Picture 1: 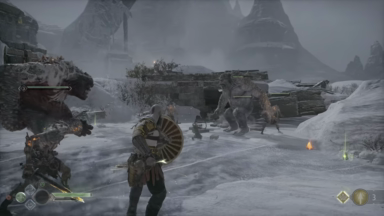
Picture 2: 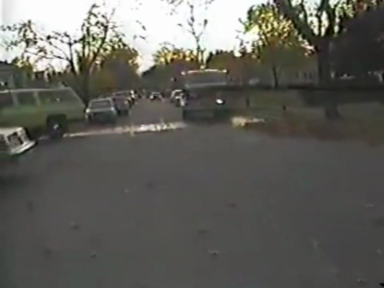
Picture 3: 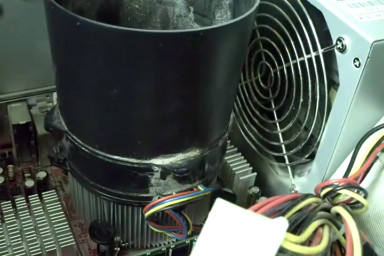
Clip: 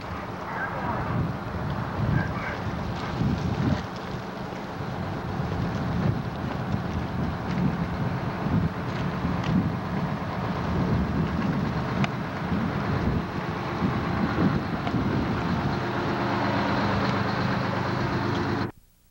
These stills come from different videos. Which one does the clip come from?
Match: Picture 2